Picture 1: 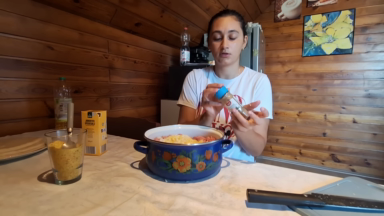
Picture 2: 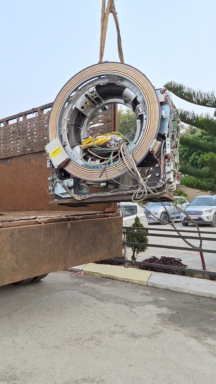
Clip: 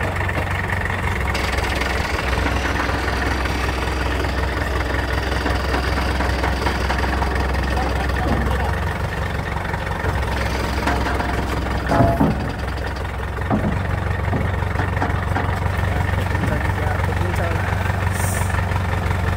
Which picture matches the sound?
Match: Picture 2